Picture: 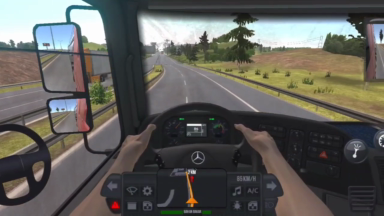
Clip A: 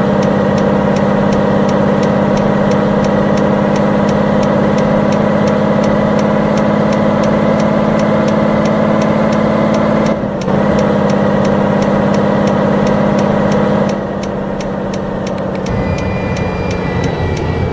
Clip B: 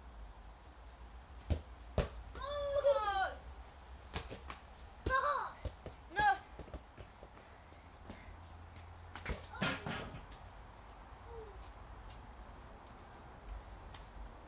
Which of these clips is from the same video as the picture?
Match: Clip A